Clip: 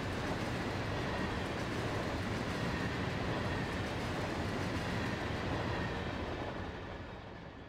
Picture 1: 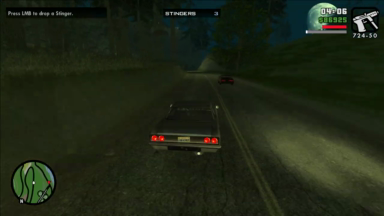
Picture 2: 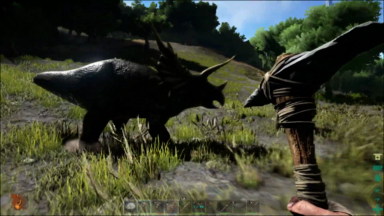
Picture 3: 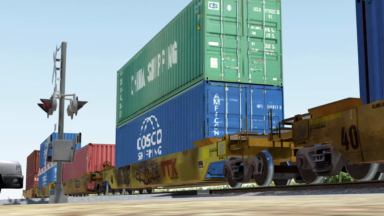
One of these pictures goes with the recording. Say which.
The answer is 3